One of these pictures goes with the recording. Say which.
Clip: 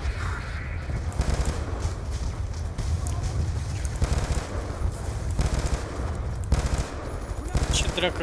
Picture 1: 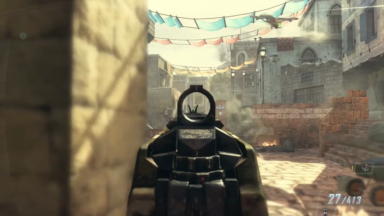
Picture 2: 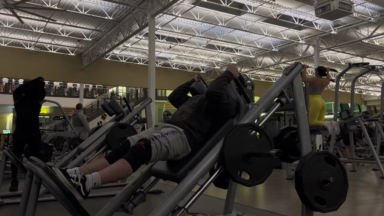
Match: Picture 1